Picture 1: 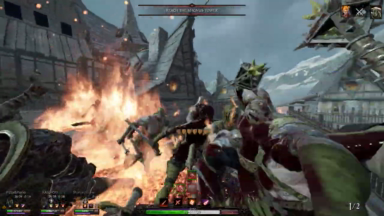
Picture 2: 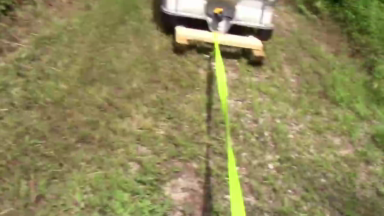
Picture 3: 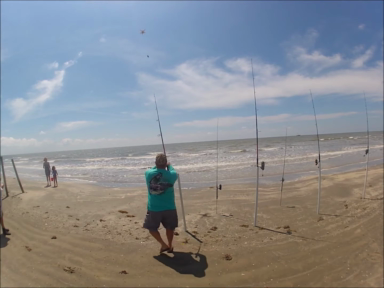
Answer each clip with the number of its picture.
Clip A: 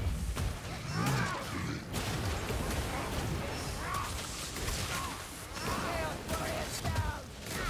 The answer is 1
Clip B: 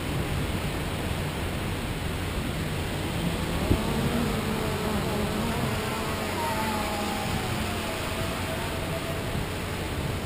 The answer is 3